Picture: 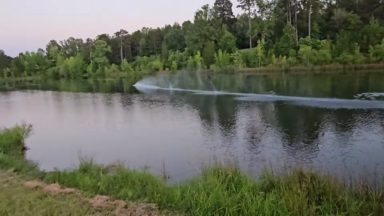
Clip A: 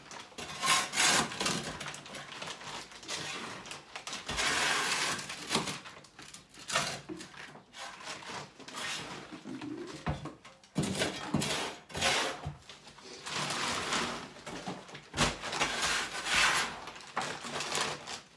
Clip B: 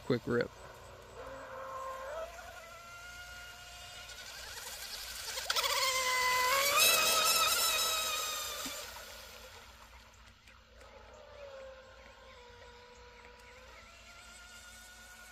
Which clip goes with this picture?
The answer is B